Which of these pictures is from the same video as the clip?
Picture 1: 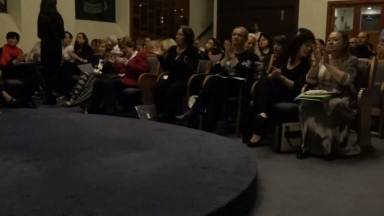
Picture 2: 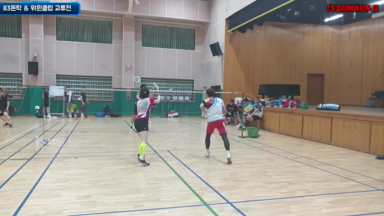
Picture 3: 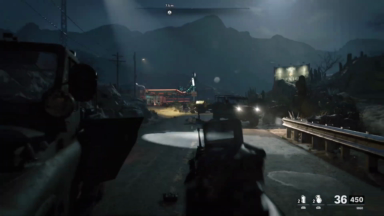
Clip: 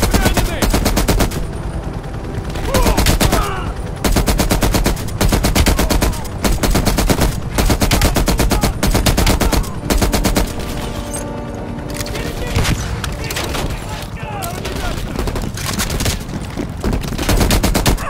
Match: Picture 3